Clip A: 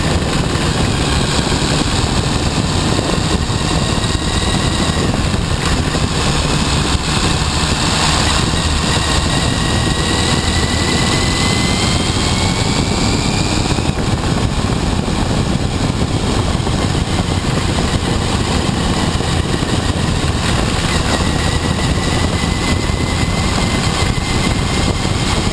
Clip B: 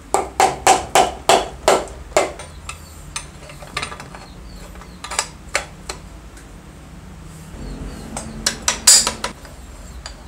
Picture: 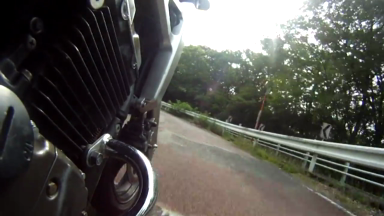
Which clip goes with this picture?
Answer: A